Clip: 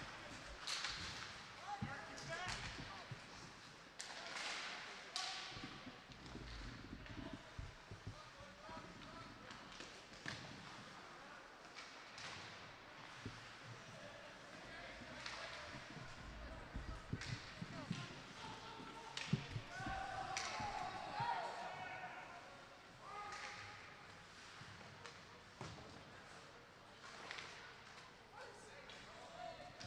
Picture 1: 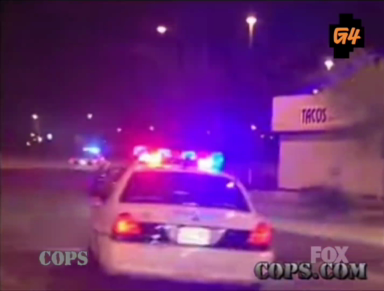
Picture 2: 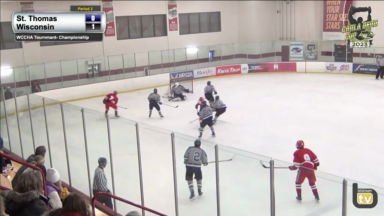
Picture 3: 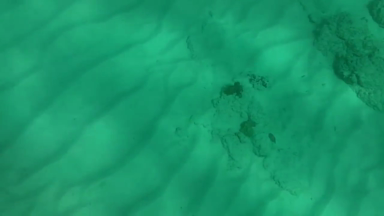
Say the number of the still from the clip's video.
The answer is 2